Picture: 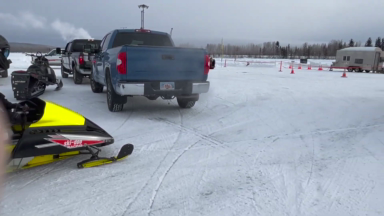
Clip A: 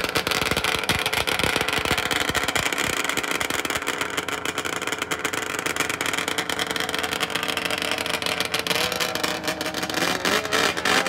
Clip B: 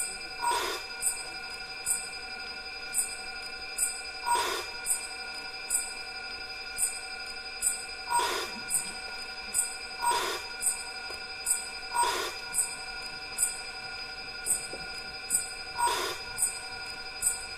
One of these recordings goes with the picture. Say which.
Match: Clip A